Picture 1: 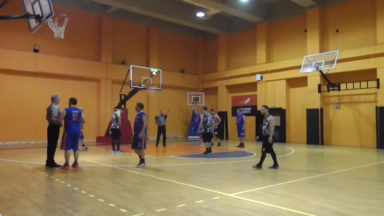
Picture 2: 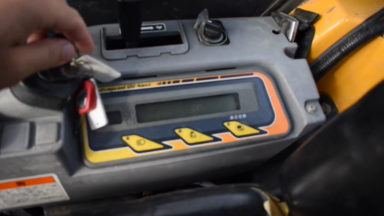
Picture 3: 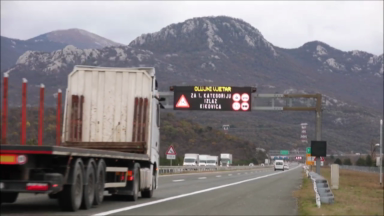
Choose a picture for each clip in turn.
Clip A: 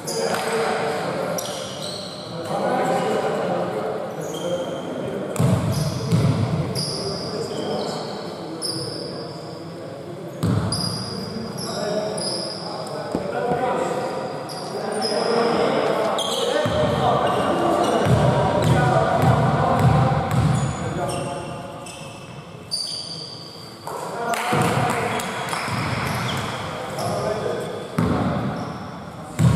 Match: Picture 1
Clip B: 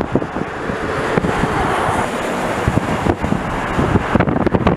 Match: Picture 3